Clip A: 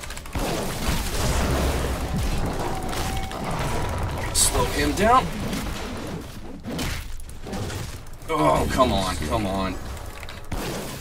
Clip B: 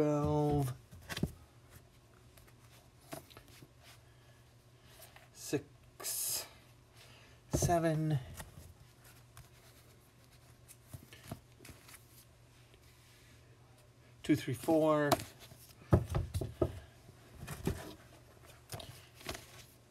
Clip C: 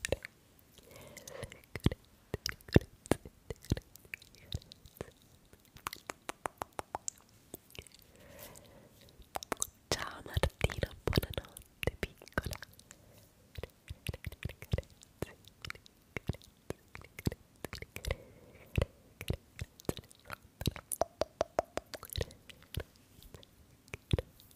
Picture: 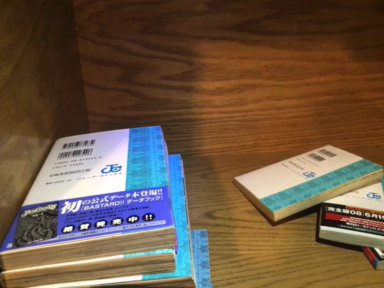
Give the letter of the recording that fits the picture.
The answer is B